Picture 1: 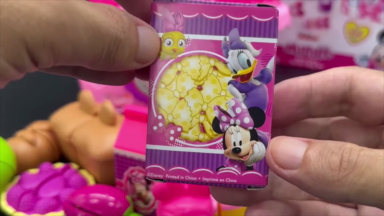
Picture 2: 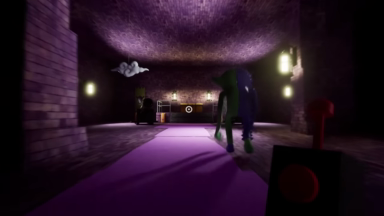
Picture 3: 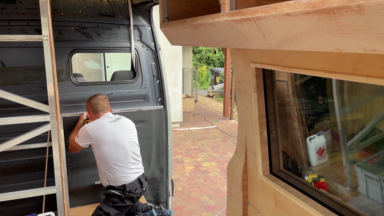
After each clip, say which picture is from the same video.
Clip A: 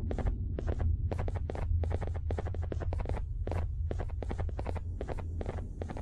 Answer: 2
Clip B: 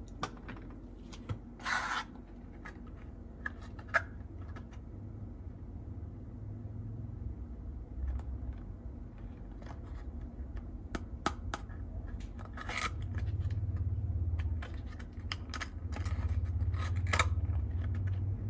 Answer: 1